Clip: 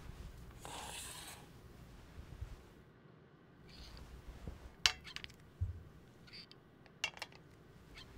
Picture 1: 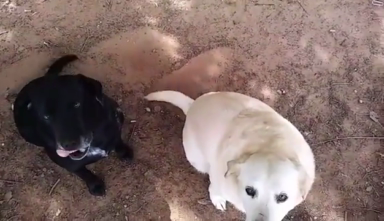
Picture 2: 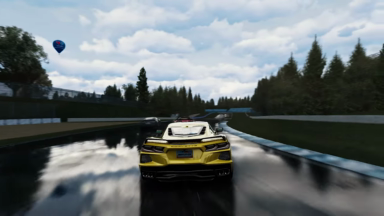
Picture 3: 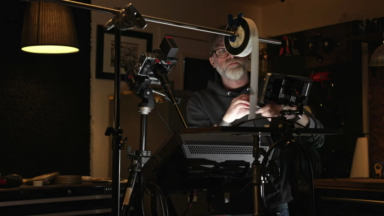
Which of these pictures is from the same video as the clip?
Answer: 3